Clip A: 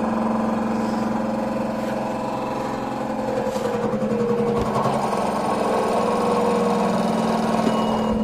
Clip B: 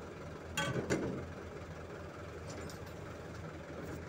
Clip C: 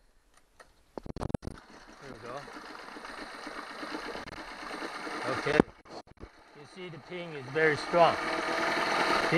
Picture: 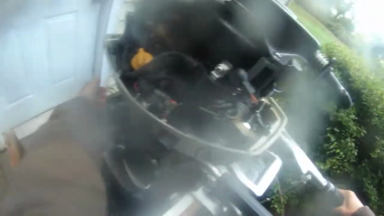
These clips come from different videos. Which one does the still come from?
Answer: C